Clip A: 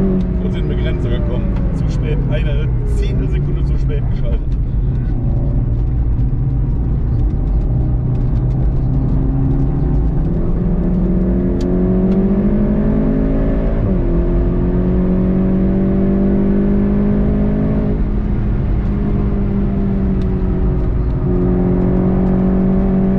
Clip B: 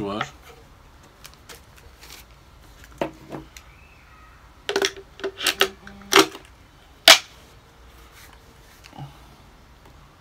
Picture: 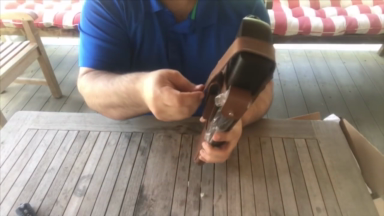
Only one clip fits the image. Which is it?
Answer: B